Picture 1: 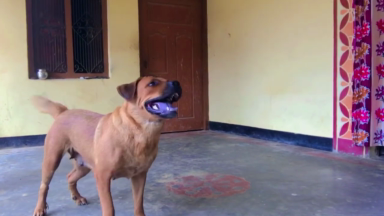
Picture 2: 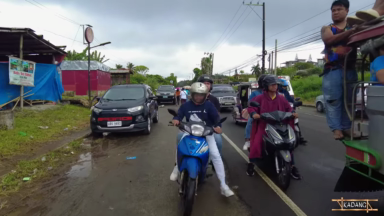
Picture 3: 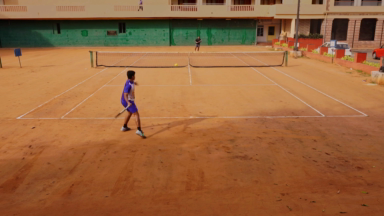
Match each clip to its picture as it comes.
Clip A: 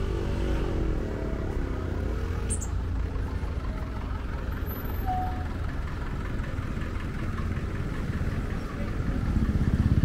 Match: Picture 2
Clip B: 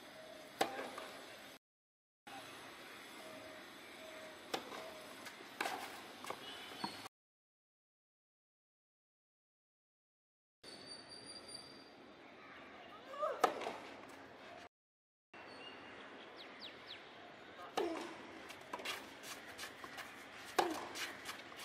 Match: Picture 3